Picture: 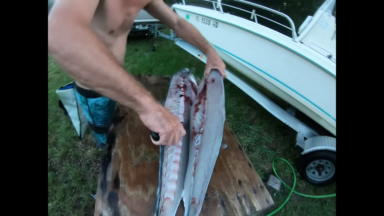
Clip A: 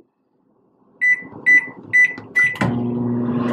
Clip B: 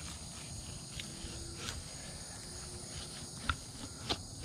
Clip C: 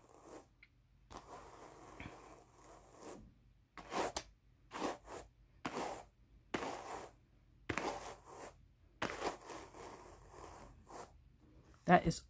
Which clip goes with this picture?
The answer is B